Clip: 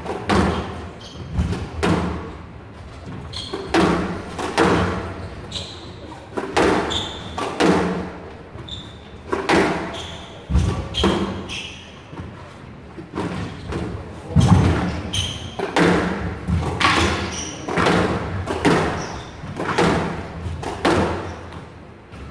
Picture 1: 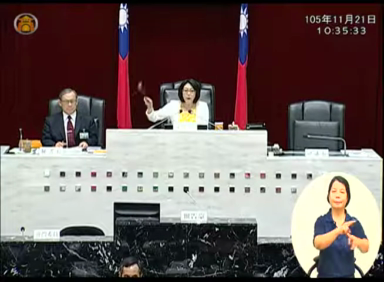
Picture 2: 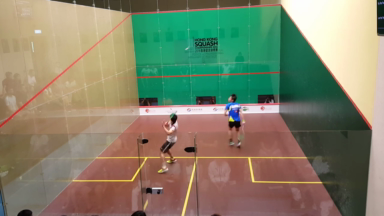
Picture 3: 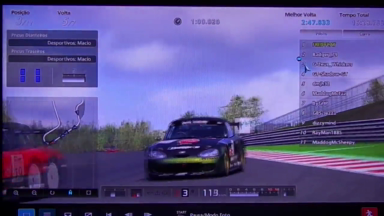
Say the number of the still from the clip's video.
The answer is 2